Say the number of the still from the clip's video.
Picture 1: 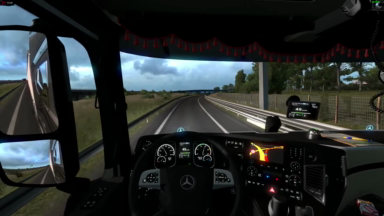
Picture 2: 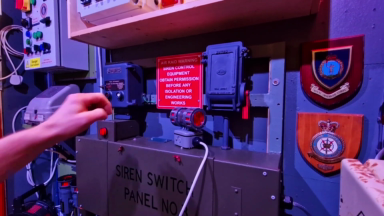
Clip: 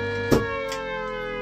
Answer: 2